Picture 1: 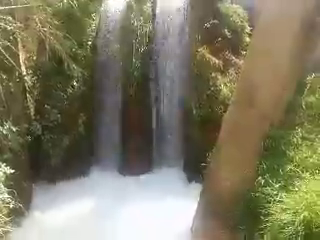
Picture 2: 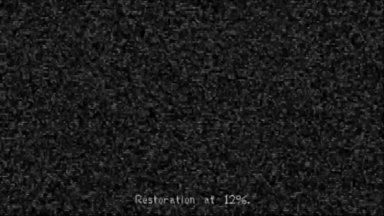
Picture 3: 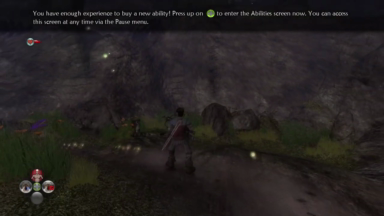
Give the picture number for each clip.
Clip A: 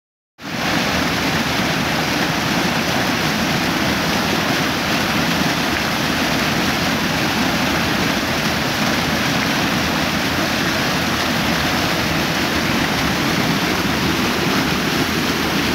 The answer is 1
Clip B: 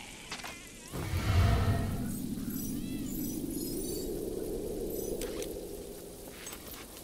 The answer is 3